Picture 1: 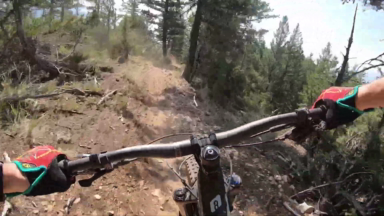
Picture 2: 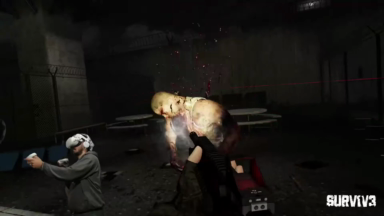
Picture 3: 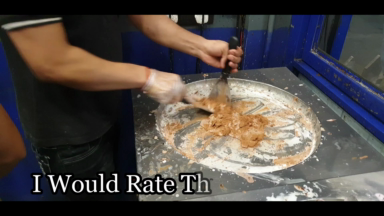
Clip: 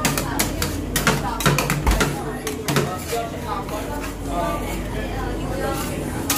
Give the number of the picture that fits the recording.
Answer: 3